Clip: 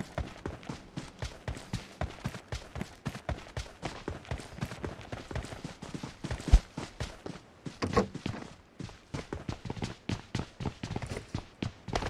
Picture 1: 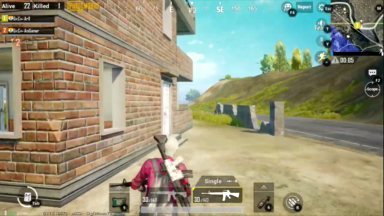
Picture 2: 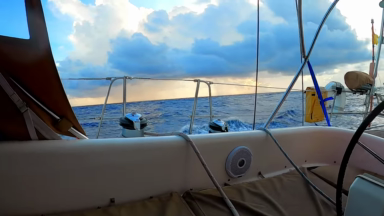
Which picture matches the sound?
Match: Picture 1